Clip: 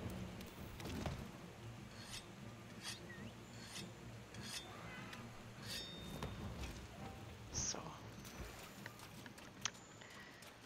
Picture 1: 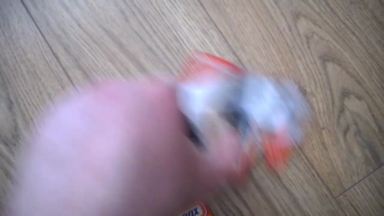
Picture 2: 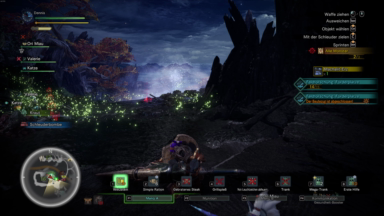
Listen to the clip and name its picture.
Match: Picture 2